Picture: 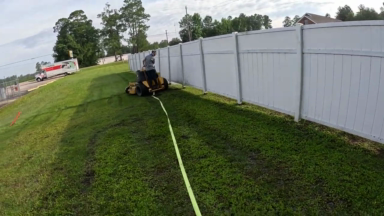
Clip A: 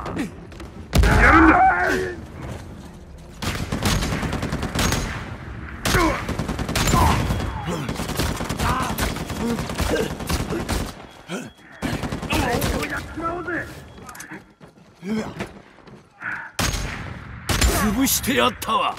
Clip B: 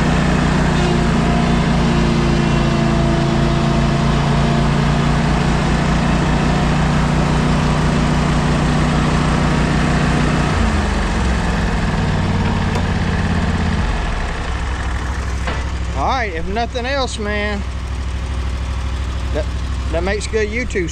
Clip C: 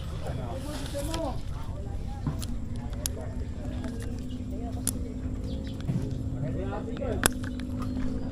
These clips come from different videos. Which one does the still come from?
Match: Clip B